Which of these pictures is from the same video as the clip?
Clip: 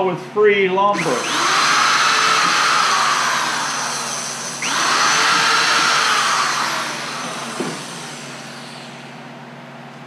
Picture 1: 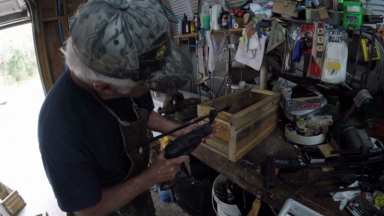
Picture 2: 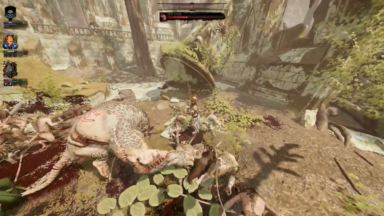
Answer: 1